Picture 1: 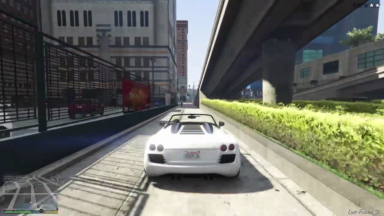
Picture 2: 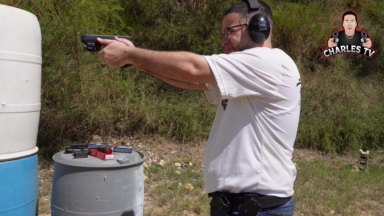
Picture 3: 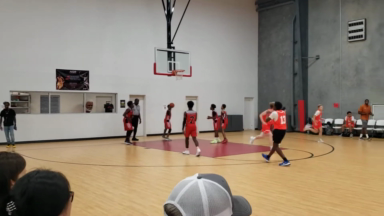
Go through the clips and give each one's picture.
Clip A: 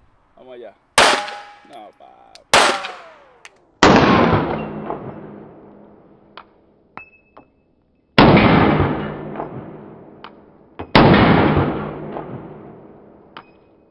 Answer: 2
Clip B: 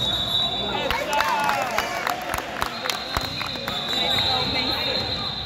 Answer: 3